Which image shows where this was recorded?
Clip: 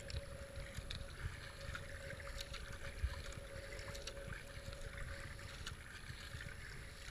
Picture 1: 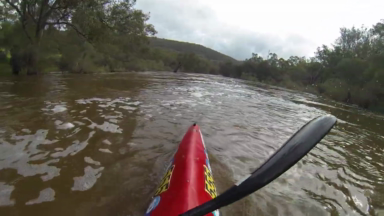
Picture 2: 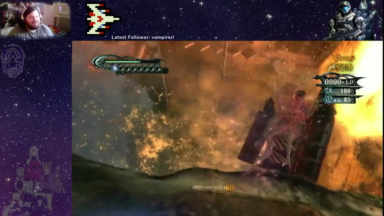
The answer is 1